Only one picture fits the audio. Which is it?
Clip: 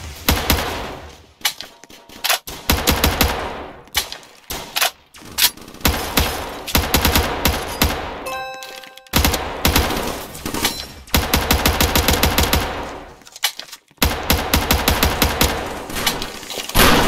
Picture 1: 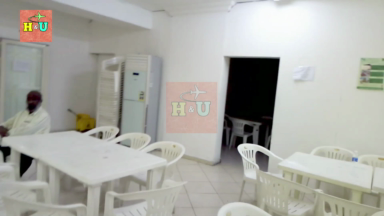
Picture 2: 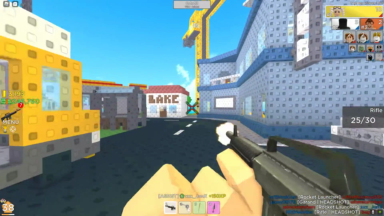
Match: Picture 2